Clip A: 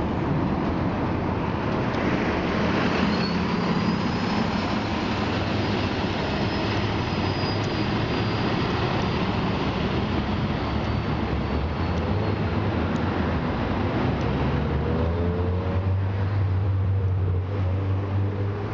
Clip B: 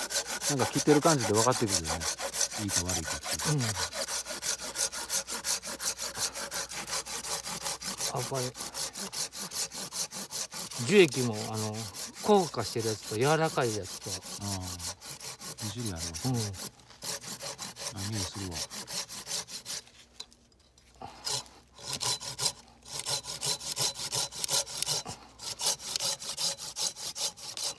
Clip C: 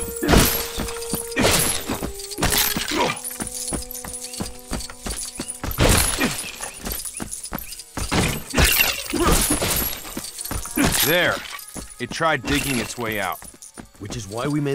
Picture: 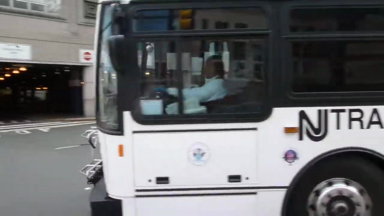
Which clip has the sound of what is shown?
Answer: A